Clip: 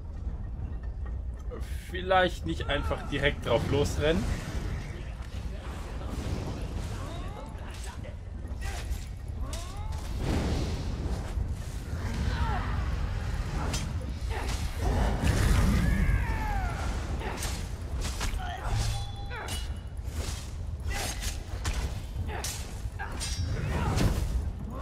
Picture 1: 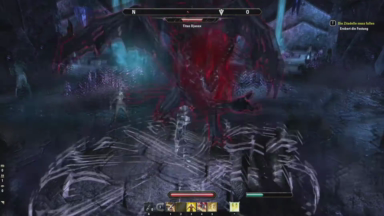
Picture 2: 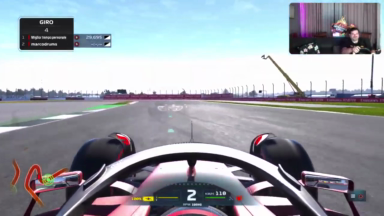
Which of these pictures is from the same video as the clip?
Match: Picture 1